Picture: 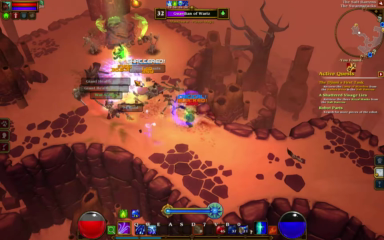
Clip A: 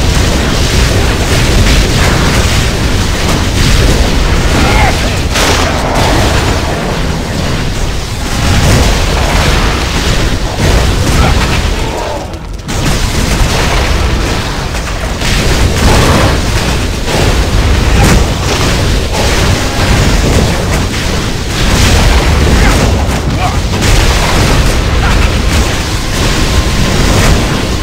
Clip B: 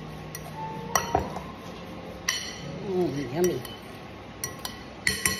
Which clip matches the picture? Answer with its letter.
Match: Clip A